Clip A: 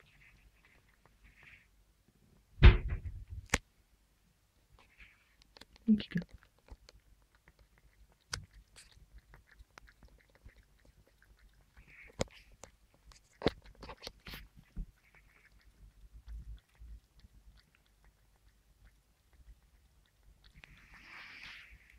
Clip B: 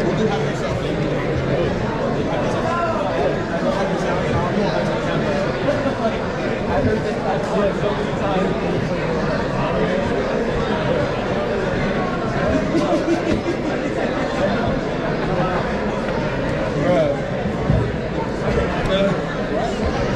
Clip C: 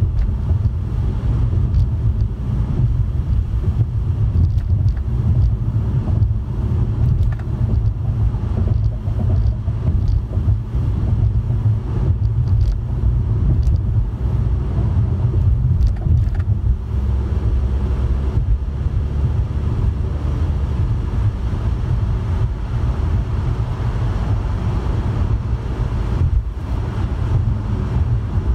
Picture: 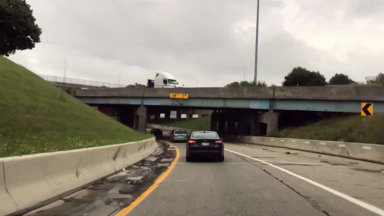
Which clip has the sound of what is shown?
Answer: C